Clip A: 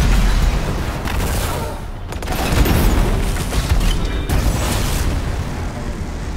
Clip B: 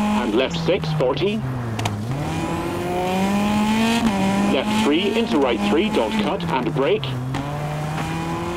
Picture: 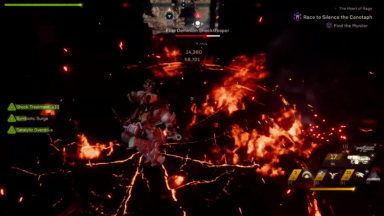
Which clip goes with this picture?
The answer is A